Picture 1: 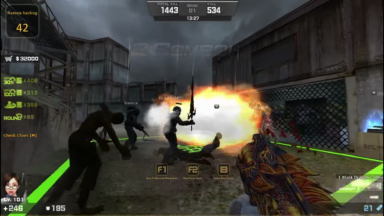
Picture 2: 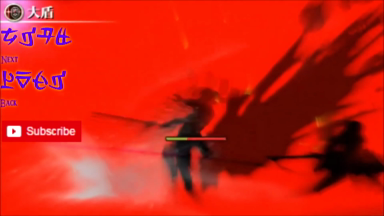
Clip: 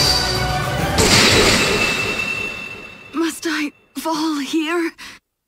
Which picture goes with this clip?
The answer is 2